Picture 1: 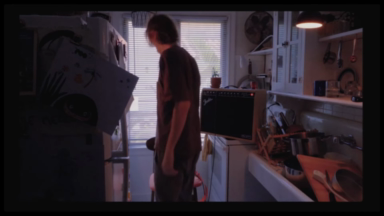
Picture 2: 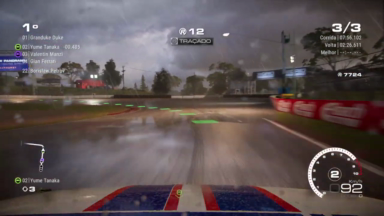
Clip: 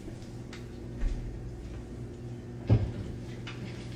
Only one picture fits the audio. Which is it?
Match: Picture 1